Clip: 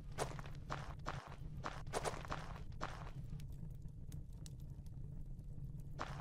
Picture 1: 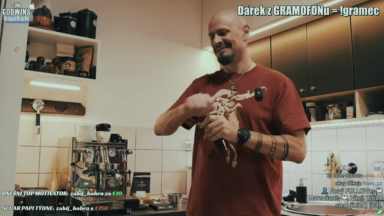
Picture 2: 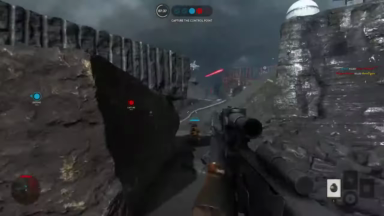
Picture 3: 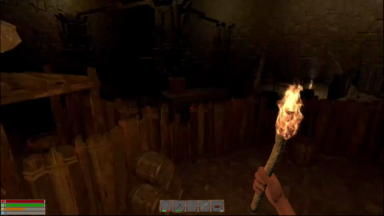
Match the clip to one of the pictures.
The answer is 3